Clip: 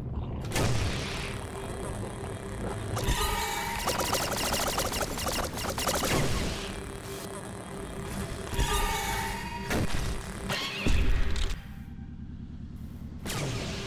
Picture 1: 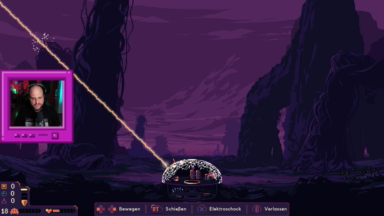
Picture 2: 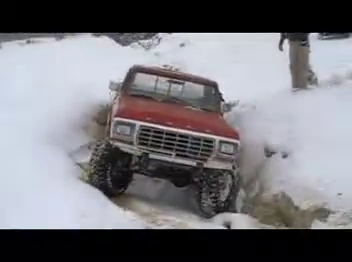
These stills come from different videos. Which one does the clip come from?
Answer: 1